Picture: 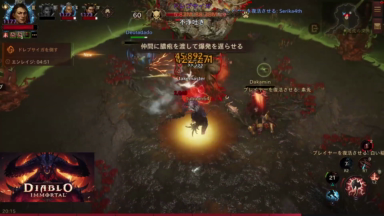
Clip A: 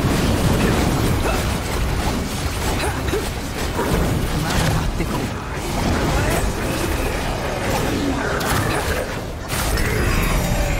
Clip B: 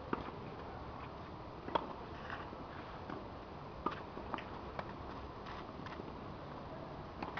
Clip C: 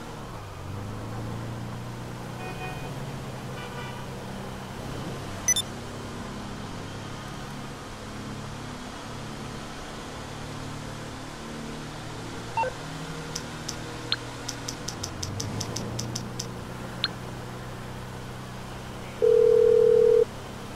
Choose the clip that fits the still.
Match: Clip A